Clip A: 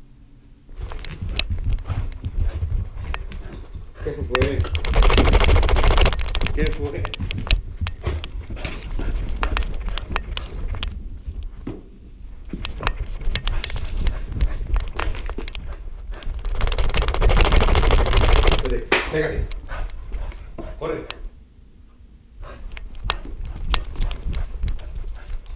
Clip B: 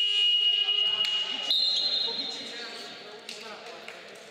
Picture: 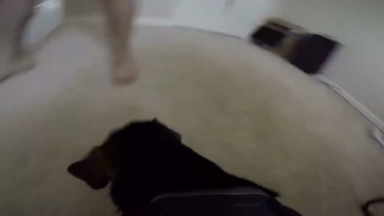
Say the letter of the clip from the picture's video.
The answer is A